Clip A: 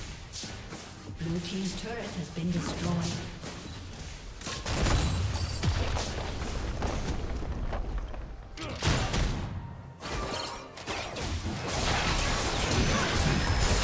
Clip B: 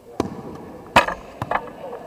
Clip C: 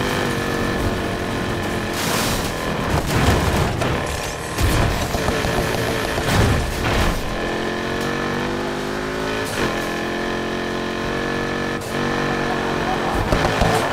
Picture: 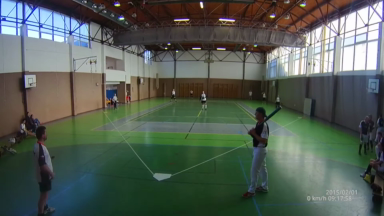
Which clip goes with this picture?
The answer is B